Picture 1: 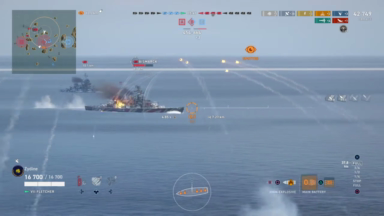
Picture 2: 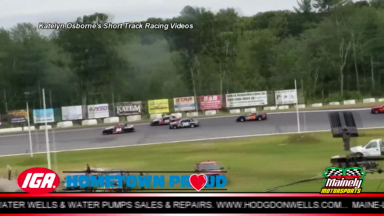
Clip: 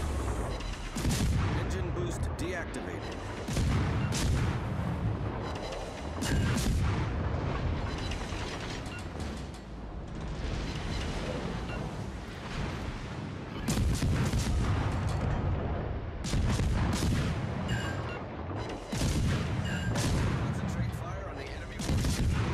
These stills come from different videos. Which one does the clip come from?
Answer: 1